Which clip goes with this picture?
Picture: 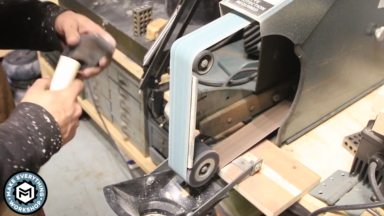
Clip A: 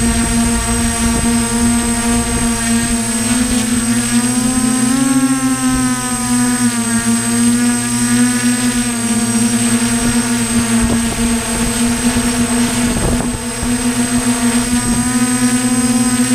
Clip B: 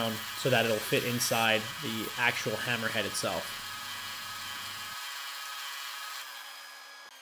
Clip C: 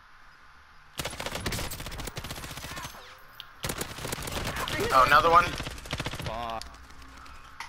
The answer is B